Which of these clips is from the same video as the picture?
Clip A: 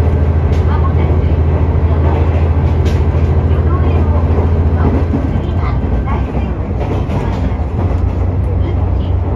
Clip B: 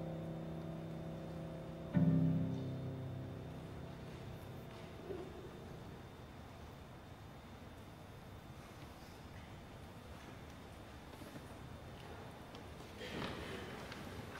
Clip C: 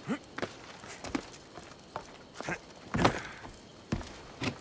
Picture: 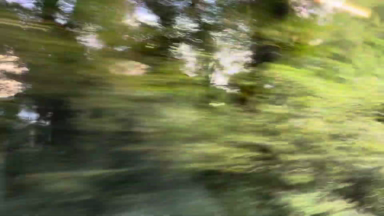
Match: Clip A